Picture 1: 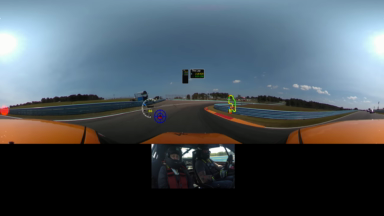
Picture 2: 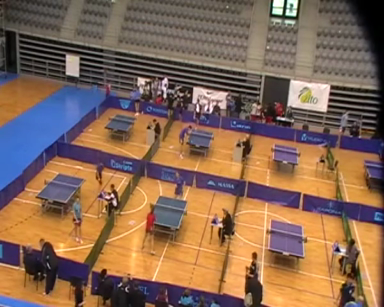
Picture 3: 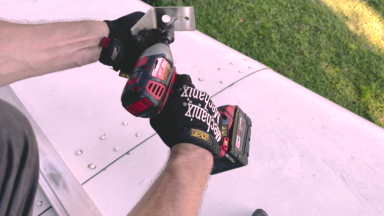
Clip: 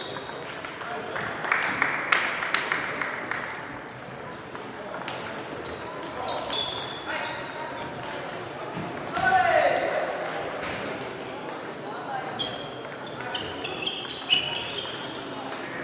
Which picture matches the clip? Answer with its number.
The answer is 2